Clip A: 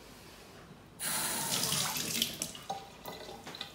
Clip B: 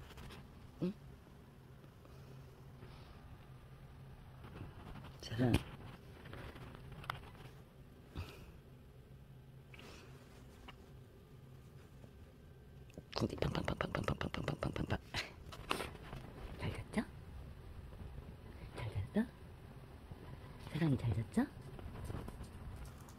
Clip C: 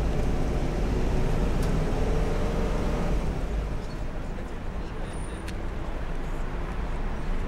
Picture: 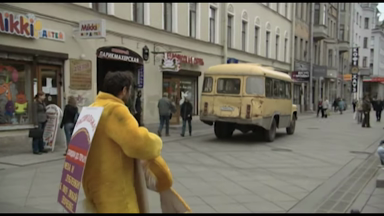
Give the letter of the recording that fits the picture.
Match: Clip C